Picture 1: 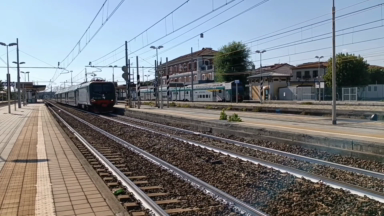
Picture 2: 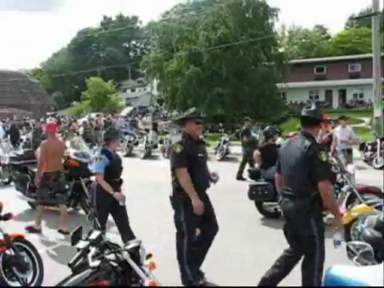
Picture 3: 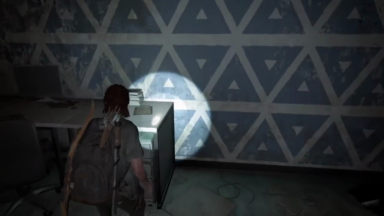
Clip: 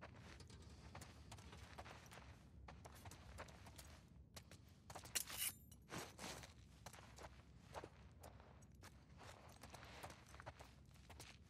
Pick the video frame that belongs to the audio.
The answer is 3